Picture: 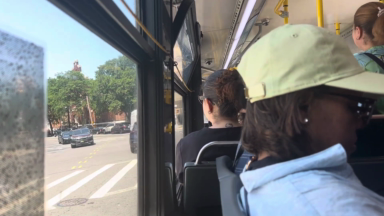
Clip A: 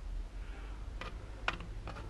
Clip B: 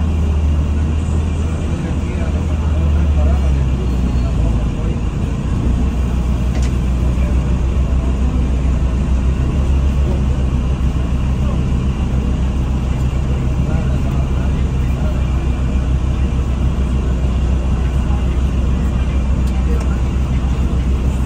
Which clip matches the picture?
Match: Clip B